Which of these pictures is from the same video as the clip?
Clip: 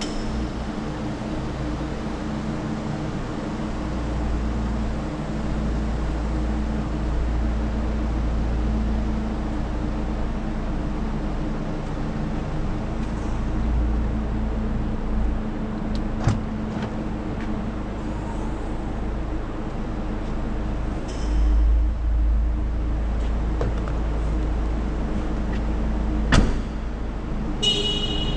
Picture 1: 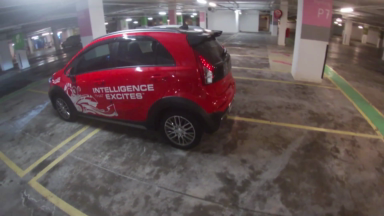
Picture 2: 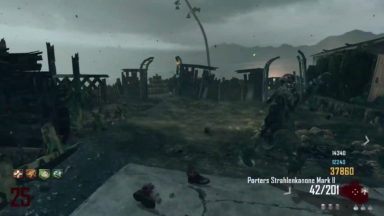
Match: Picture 1